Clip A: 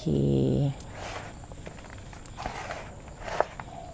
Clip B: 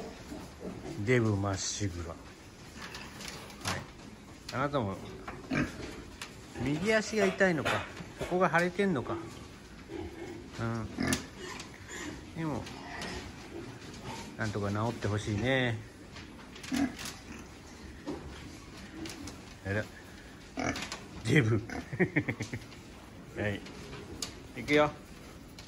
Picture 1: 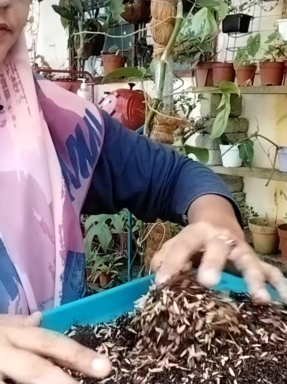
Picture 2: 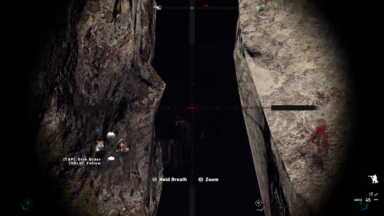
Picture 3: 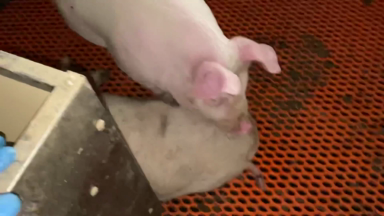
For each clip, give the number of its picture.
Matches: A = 1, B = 3